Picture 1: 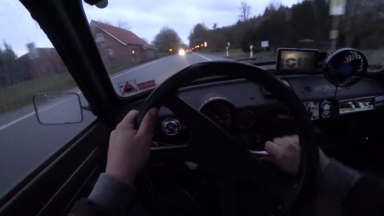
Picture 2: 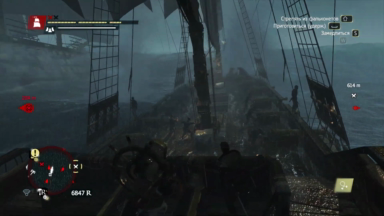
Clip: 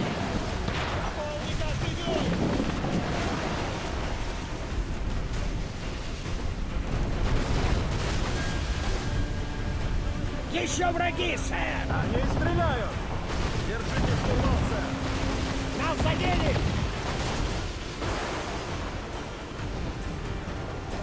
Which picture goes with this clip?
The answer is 2